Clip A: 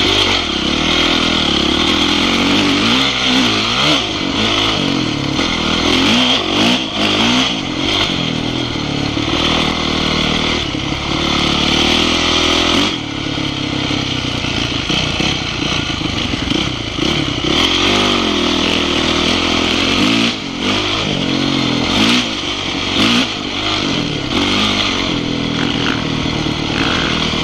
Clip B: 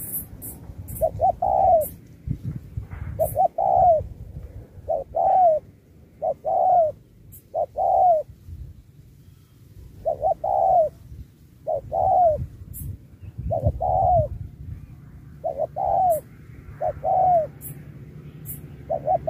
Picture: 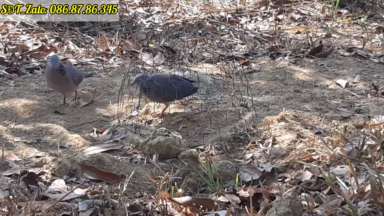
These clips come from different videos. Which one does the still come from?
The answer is B